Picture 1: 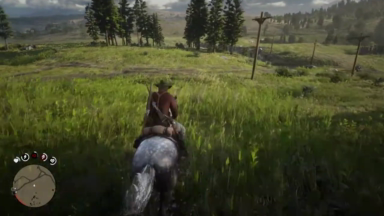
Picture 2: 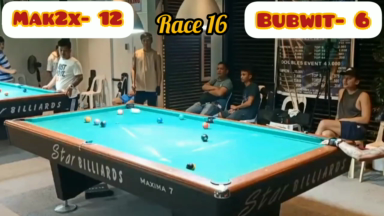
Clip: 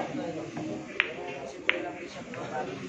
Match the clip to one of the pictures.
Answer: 2